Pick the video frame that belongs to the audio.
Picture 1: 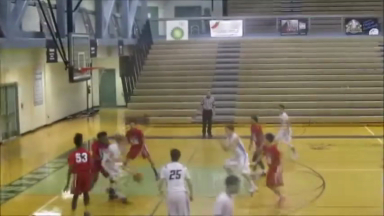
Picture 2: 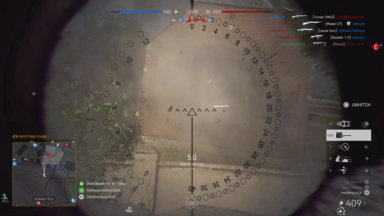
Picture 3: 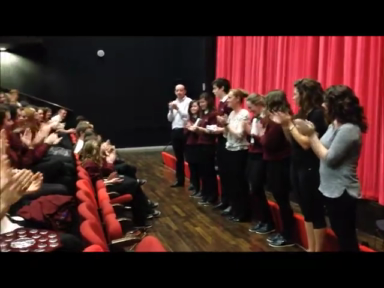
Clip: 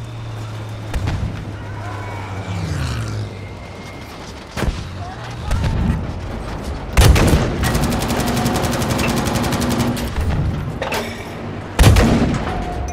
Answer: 2